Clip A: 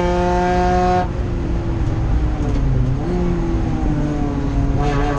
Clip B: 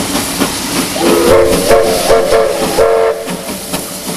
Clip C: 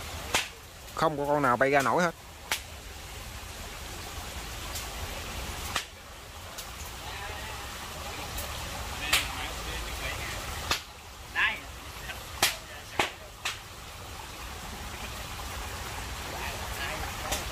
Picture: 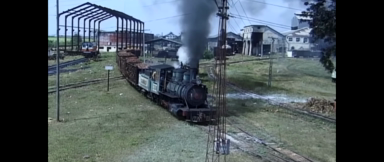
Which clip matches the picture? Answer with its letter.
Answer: B